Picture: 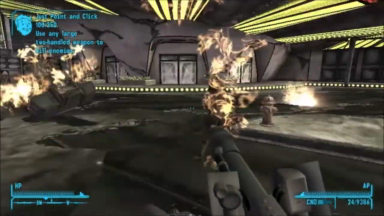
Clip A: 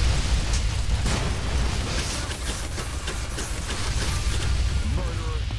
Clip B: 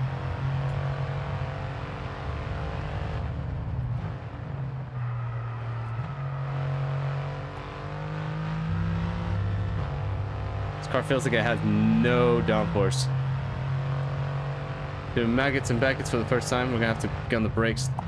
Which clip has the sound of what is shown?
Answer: A